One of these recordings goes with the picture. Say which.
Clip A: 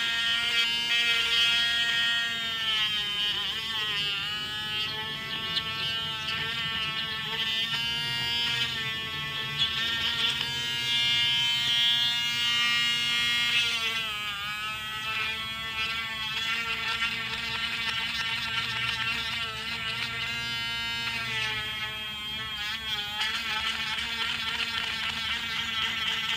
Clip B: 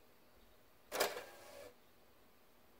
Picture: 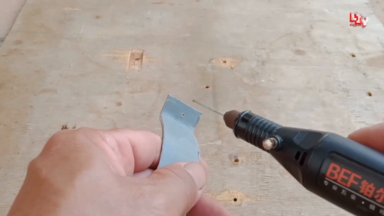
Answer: A